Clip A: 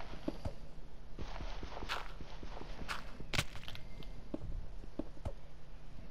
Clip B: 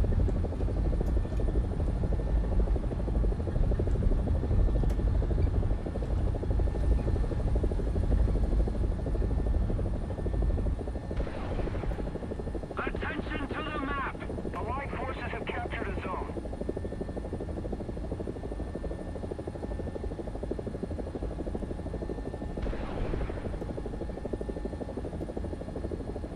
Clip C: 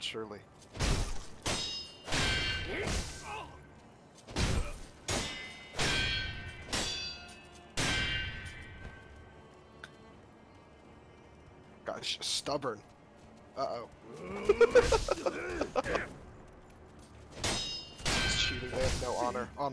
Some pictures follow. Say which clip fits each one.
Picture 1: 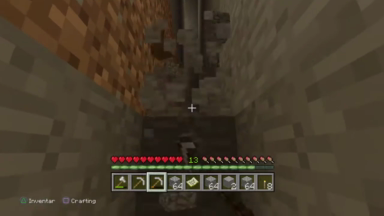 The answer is A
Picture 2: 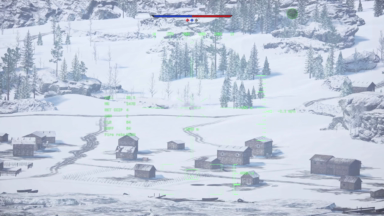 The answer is B